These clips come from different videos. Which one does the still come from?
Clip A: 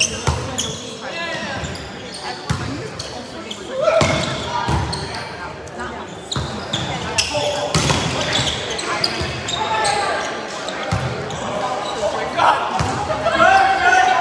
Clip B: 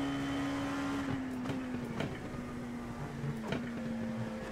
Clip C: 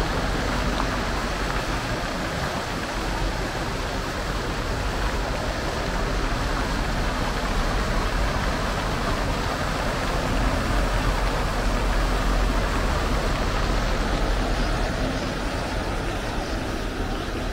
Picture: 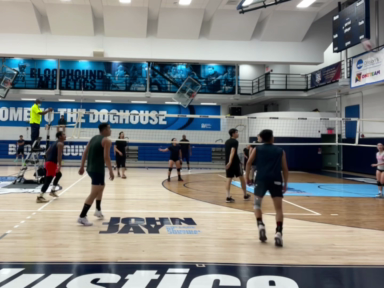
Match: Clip A